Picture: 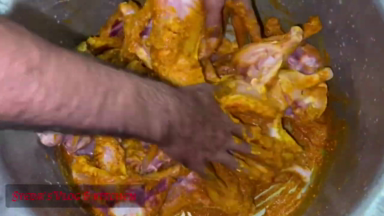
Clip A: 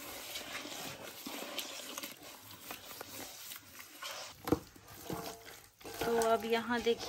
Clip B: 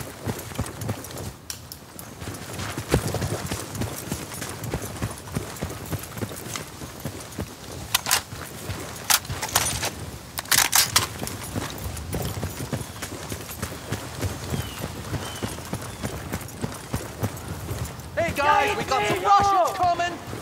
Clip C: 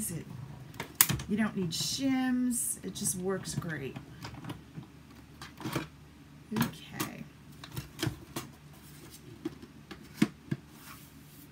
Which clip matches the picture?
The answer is A